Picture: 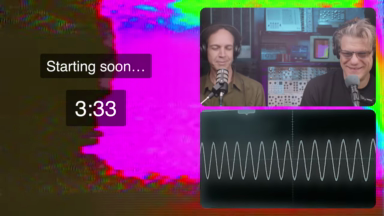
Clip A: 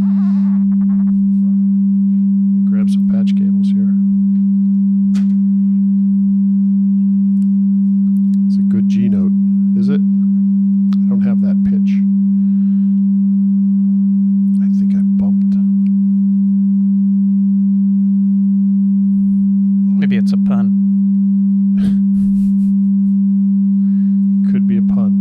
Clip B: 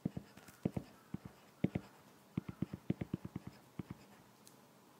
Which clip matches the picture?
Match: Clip A